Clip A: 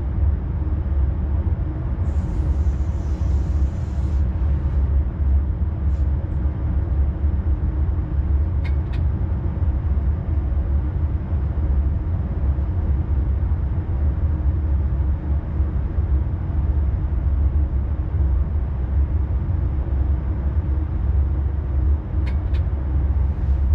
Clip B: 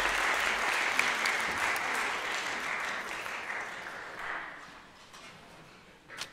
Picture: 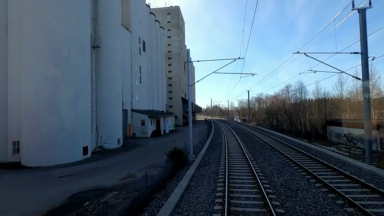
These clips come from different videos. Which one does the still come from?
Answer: A